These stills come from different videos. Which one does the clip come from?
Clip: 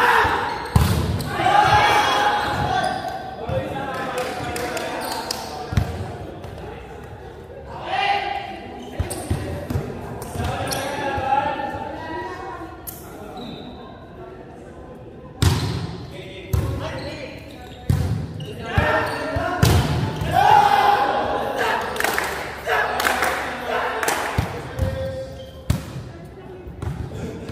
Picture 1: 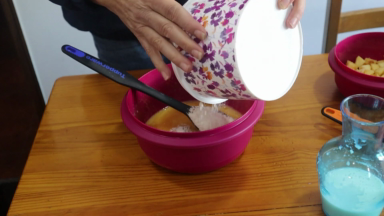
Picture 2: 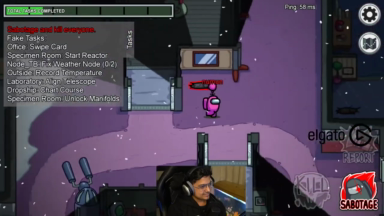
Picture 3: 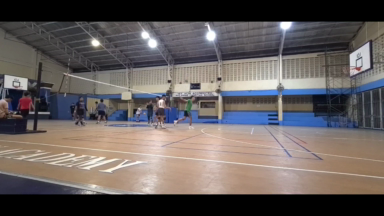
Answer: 3